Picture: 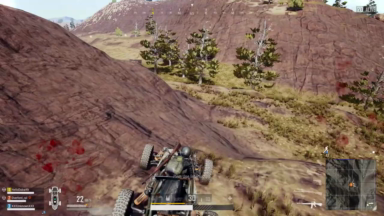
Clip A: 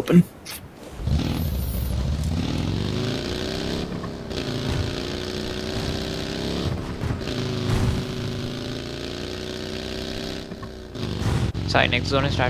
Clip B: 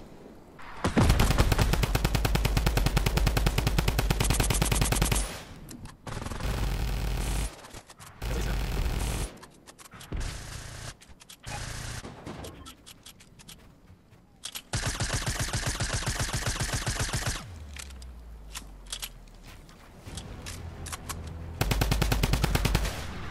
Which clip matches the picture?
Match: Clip A